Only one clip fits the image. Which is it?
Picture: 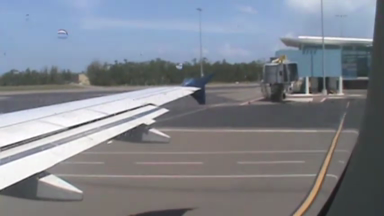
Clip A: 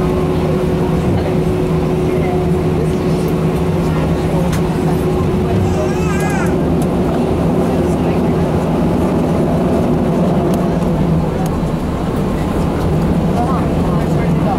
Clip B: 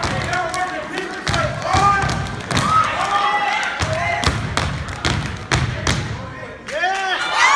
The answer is A